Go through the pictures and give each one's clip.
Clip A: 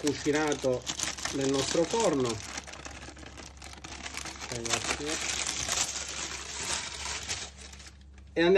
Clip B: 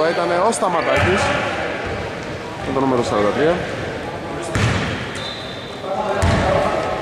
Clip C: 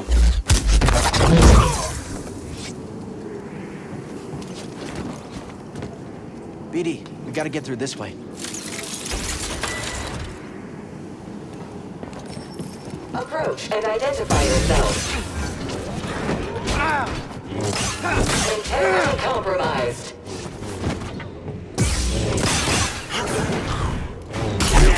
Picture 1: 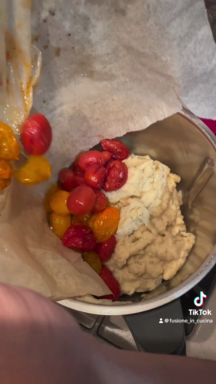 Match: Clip A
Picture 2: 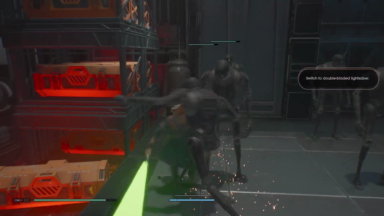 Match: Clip C